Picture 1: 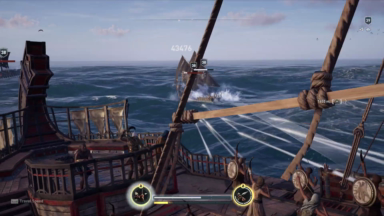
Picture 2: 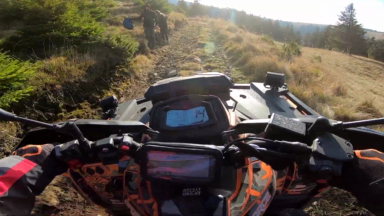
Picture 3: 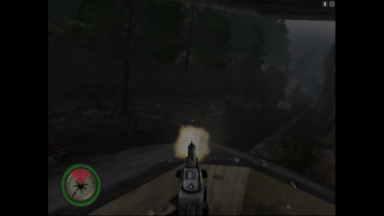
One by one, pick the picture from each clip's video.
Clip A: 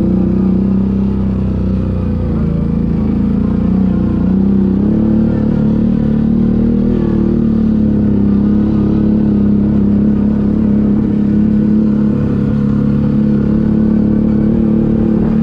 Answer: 2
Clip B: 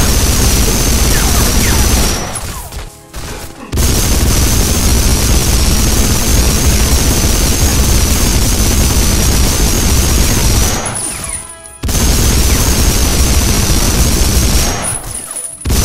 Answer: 3